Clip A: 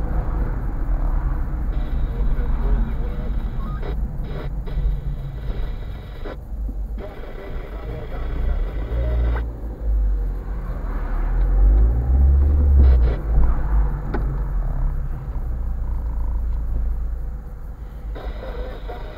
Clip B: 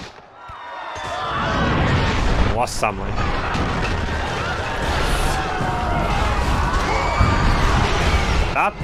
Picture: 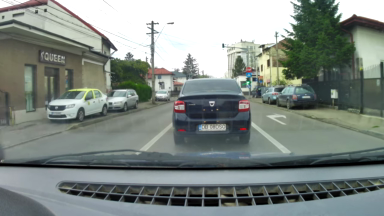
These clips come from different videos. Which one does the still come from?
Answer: A